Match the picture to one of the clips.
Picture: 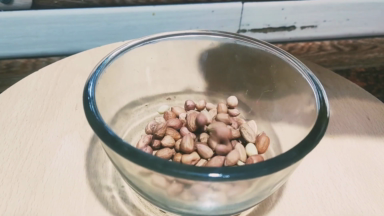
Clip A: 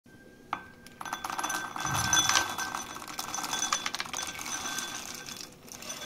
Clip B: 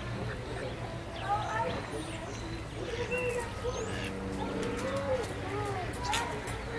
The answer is A